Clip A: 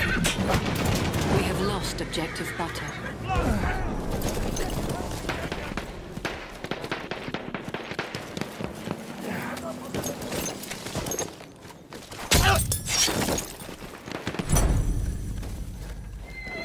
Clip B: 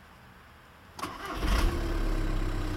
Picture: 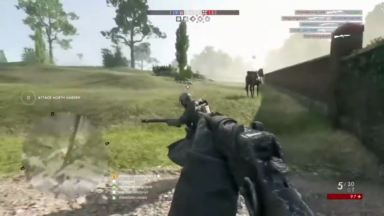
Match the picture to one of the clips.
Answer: A